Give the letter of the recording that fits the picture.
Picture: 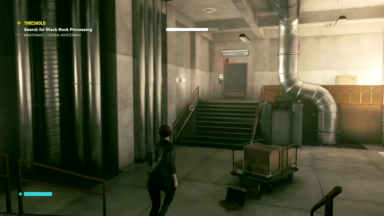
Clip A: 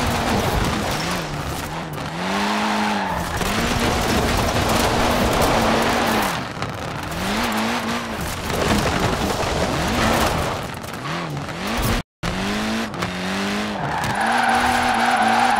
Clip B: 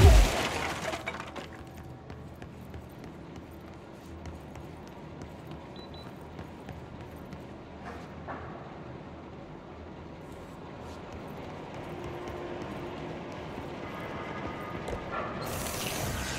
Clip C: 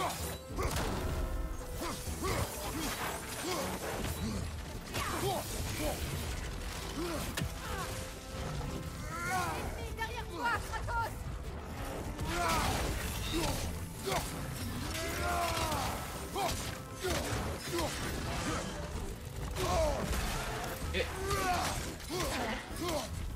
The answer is B